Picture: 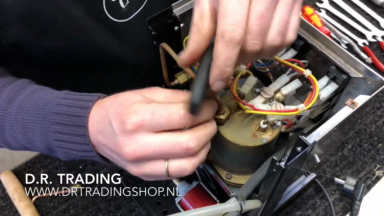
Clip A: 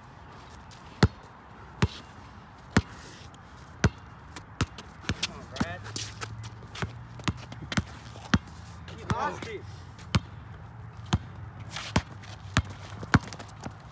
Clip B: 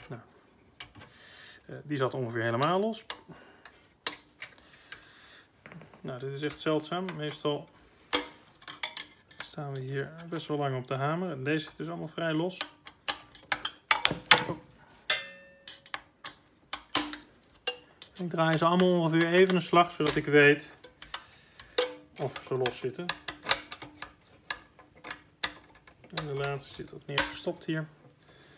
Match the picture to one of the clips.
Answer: B